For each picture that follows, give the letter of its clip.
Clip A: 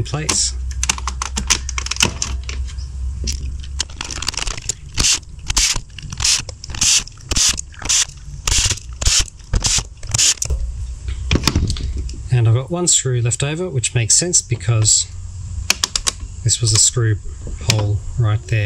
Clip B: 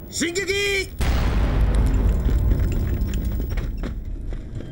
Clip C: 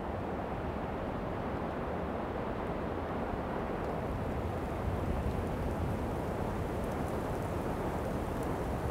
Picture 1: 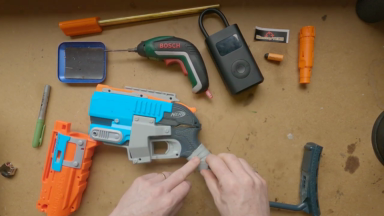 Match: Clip A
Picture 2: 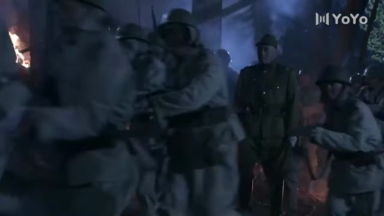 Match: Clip B